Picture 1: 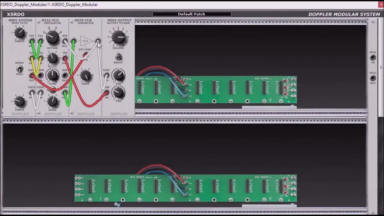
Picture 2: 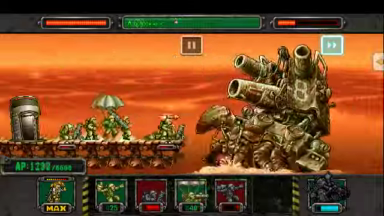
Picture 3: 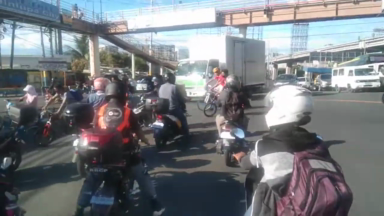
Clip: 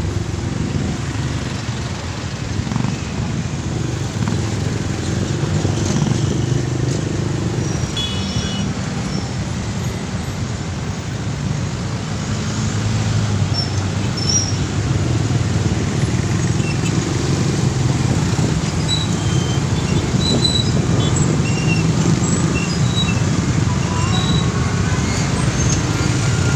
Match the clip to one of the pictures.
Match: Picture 3